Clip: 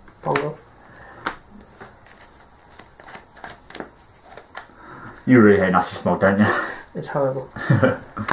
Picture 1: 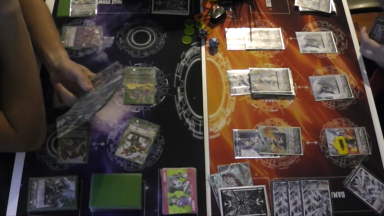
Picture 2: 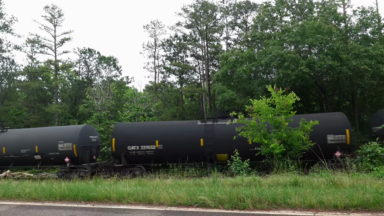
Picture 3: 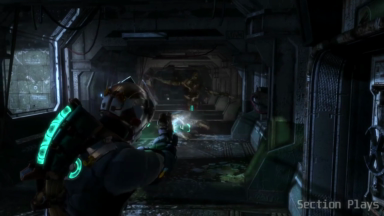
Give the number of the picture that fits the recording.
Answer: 1